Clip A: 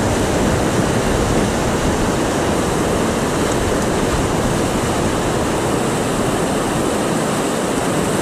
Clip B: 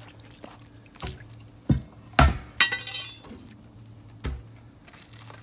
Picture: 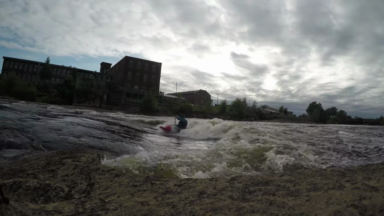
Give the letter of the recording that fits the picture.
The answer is A